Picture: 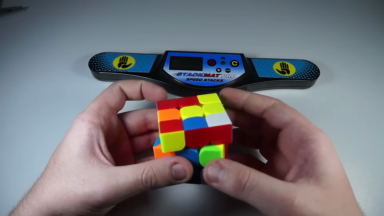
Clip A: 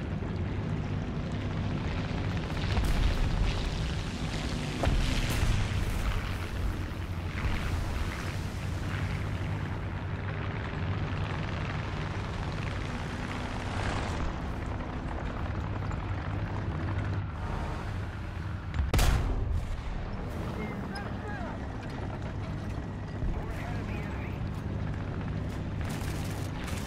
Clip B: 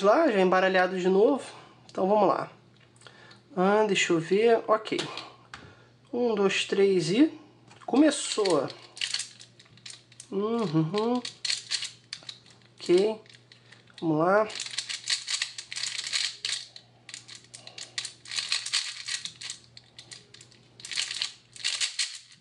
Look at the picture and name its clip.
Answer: B